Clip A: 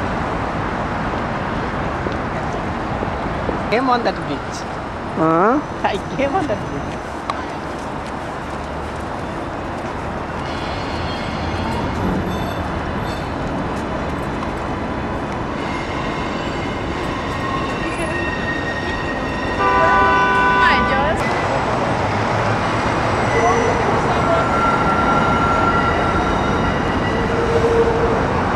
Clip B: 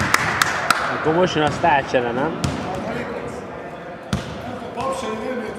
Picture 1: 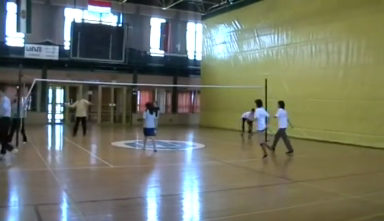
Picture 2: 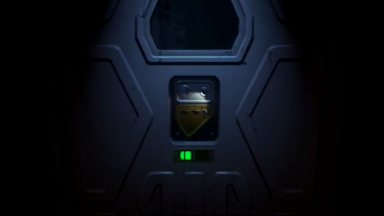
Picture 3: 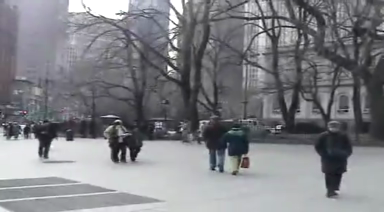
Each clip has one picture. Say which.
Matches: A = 3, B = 1